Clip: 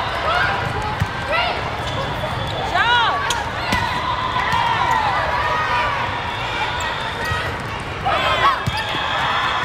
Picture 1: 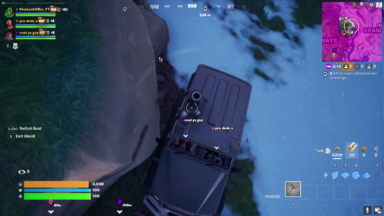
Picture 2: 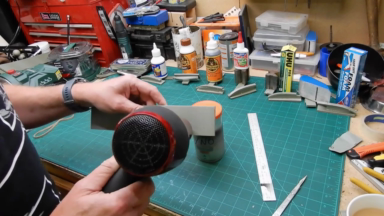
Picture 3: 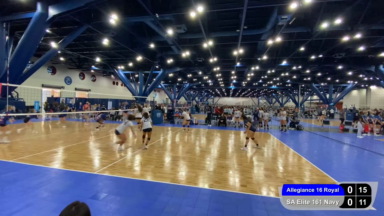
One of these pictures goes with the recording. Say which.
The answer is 3